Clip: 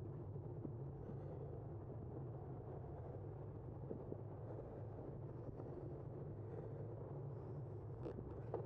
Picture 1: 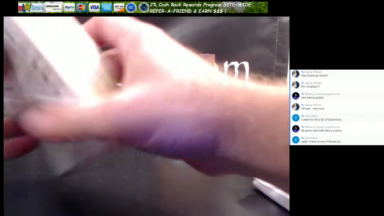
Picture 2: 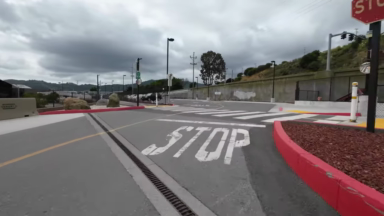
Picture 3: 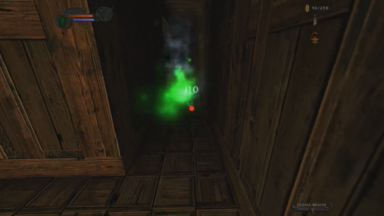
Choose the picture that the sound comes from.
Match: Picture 2